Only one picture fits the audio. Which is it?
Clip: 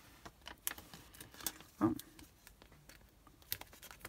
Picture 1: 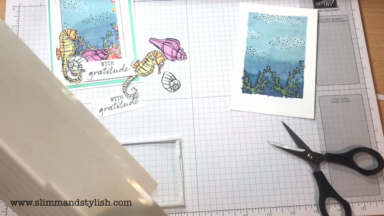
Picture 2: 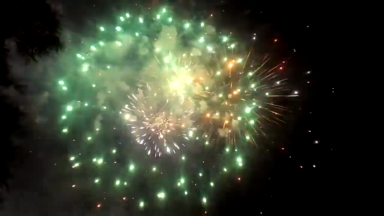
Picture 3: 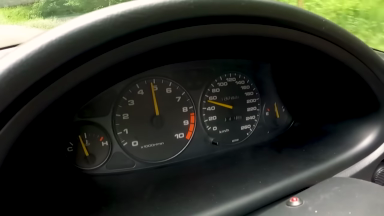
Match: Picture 1